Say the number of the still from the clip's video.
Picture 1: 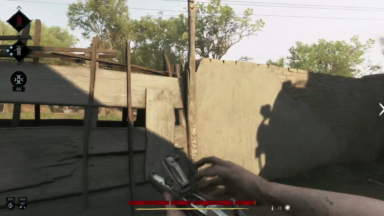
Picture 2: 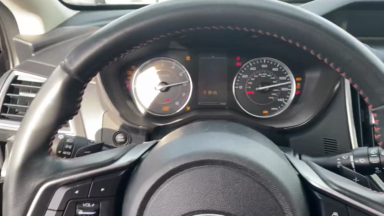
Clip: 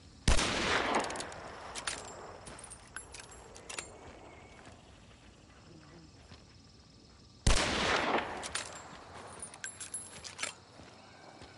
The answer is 1